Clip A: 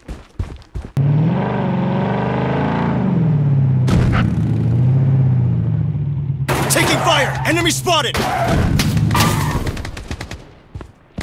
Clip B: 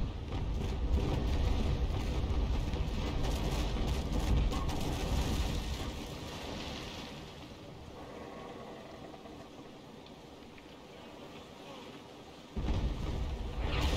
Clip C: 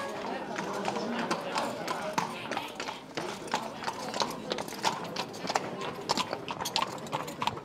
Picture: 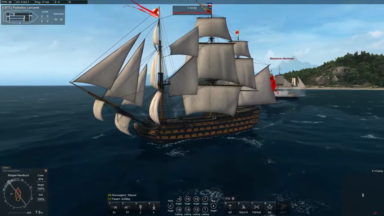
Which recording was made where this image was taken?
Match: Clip B